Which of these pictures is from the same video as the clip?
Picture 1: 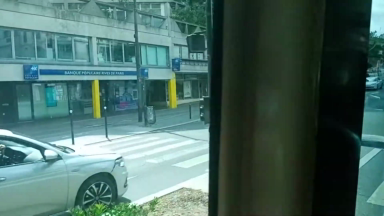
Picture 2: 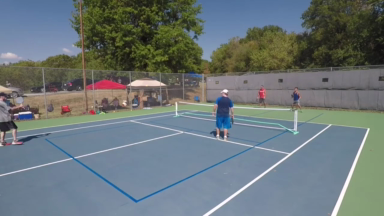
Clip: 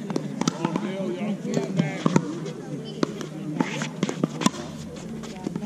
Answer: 2